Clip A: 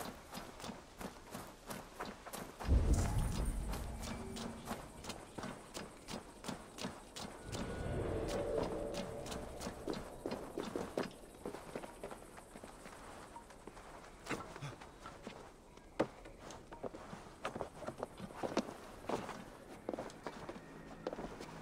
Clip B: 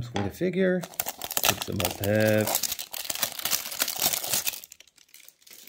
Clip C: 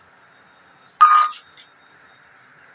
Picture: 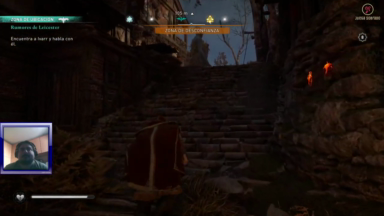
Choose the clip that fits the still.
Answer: A